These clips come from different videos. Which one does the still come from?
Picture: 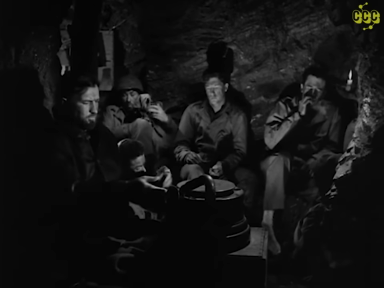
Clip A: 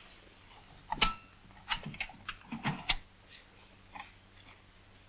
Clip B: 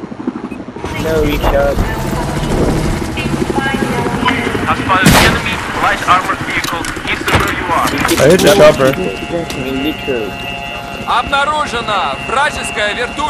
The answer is A